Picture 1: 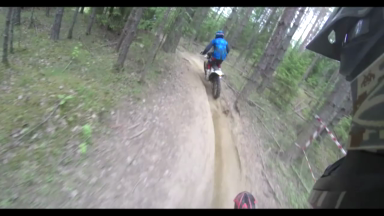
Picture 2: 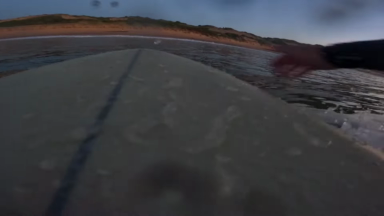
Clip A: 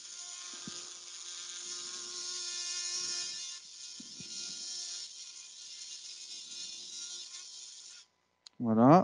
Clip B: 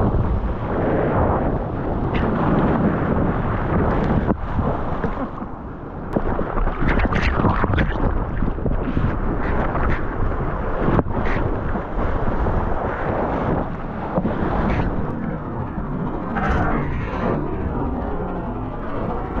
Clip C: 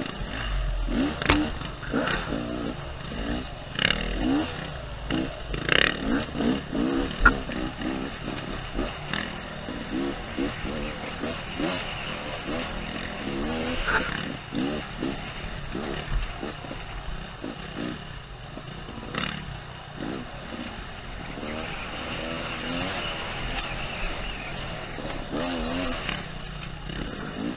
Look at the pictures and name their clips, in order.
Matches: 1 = C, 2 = B